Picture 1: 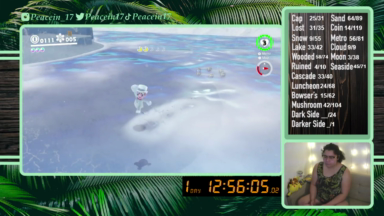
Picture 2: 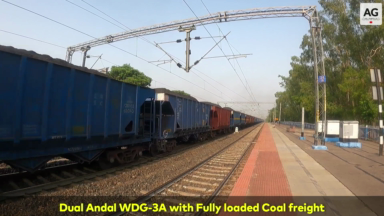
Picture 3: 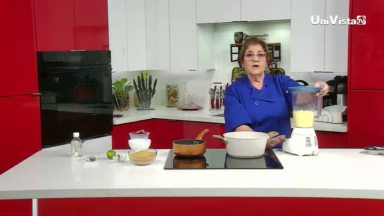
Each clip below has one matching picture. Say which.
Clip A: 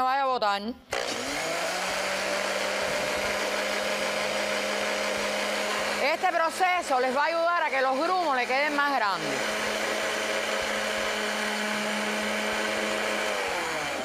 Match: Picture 3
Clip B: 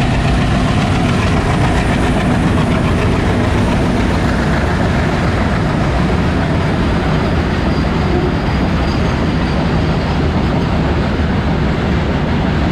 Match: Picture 2